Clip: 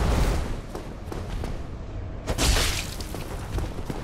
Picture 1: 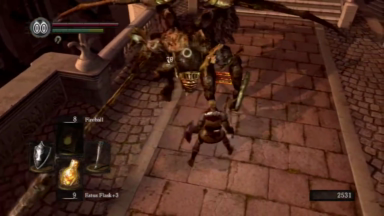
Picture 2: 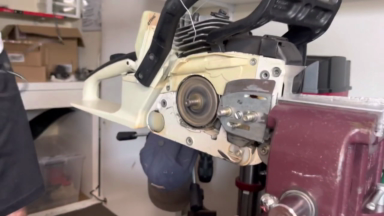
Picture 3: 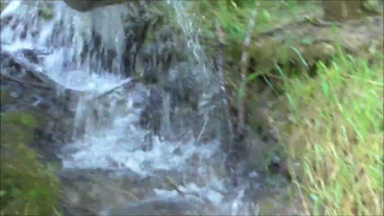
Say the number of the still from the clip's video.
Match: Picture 1